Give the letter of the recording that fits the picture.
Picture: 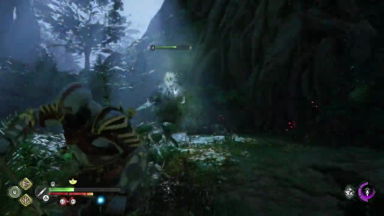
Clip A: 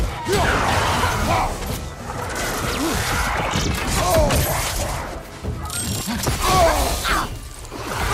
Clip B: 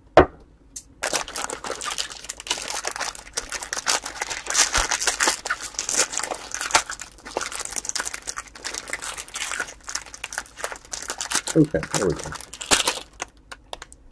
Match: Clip A